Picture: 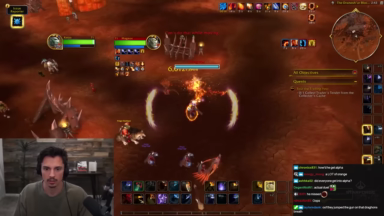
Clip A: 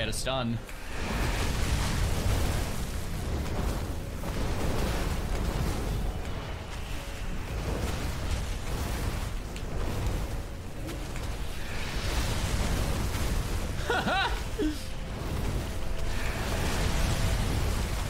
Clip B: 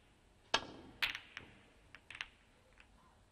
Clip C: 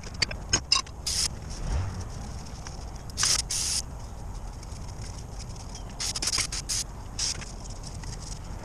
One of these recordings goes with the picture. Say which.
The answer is A